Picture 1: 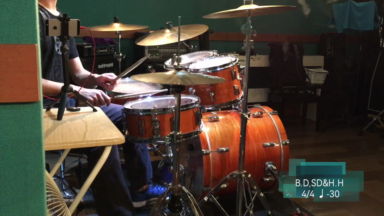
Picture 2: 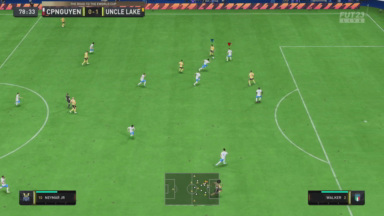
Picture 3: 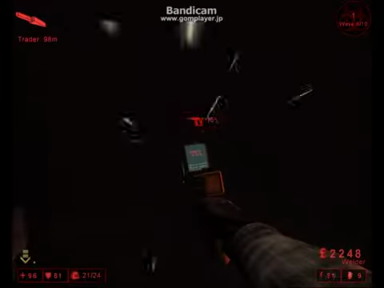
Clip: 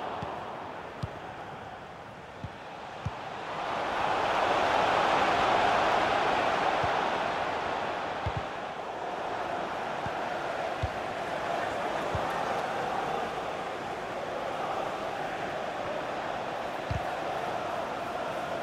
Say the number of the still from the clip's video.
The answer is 2